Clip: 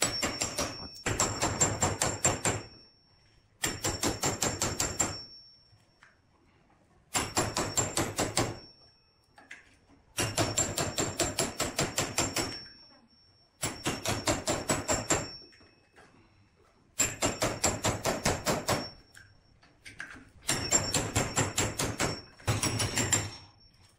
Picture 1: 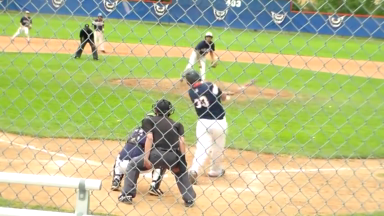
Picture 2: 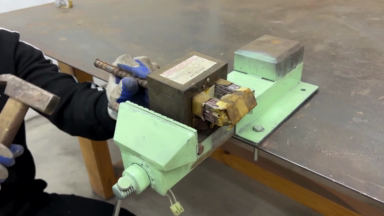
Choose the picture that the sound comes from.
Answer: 2